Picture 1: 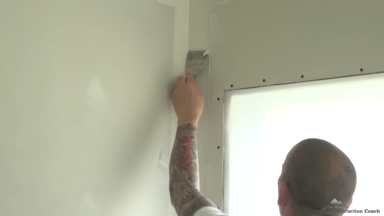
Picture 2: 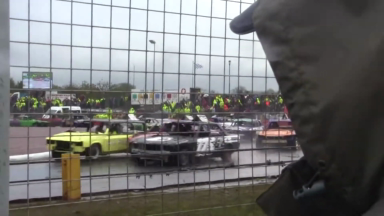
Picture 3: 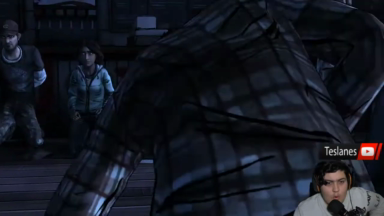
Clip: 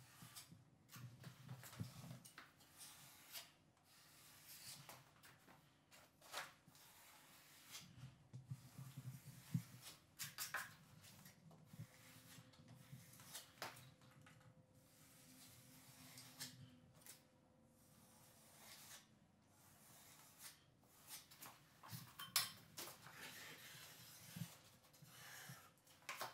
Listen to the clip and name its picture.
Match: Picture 1